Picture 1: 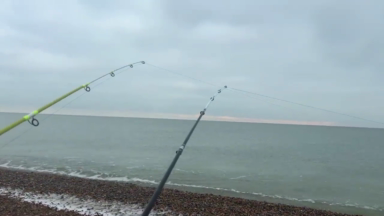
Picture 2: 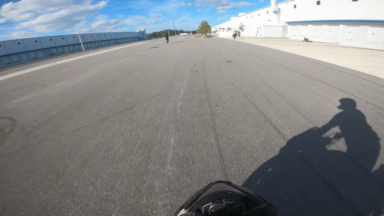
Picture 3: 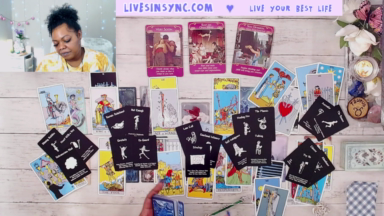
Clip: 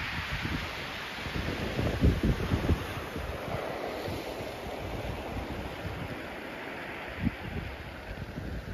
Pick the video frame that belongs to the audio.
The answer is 1